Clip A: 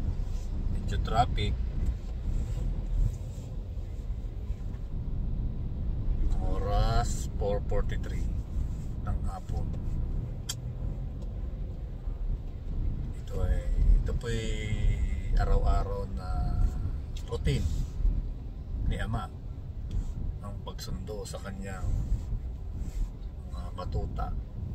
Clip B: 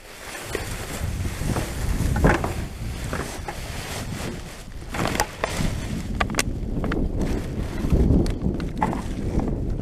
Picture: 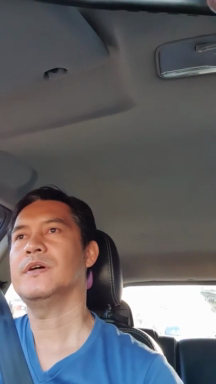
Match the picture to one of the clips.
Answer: A